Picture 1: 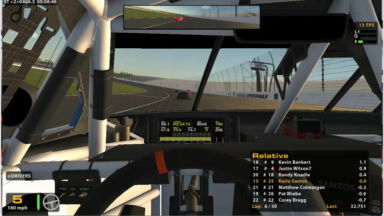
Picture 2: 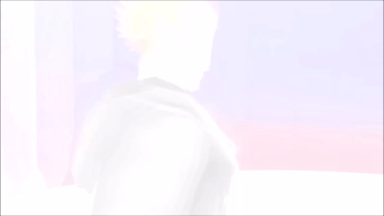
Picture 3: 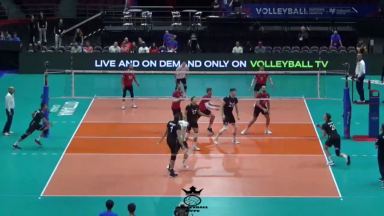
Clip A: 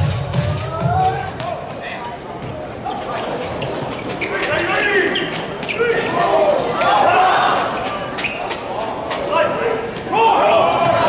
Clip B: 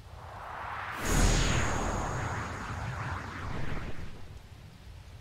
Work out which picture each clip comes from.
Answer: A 3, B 2